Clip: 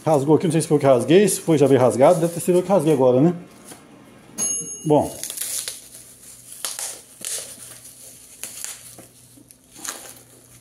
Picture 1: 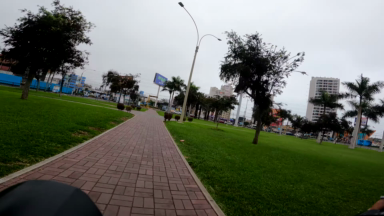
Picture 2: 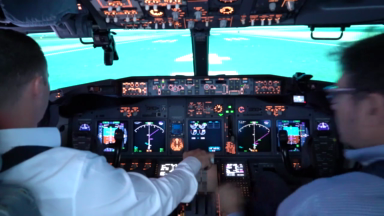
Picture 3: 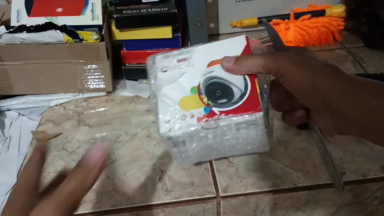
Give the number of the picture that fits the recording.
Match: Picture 3